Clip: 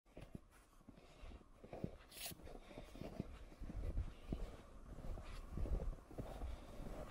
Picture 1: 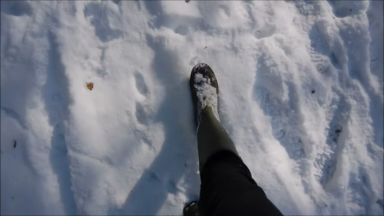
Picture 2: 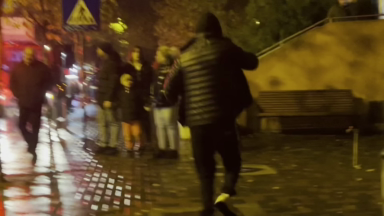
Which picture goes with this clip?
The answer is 1